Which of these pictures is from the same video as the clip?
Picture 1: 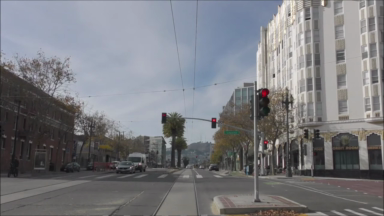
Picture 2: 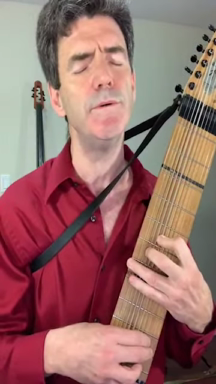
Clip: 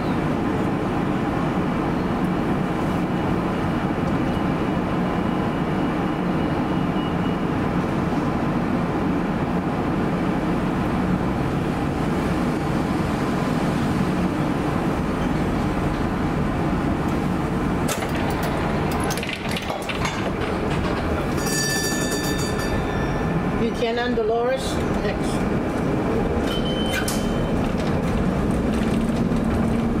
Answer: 1